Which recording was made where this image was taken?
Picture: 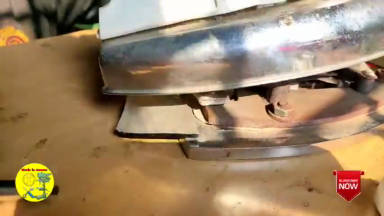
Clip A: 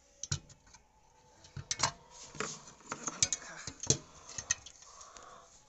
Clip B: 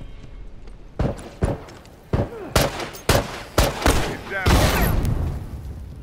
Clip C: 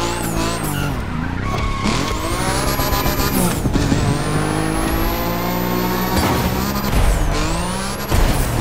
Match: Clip A